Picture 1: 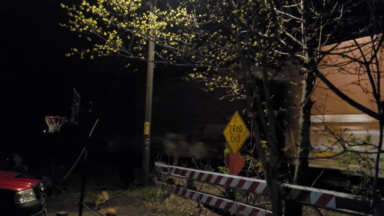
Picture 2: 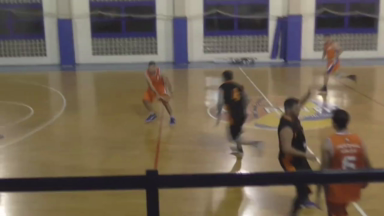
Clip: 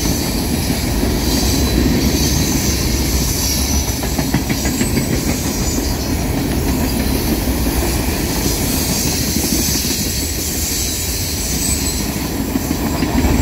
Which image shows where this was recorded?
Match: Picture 1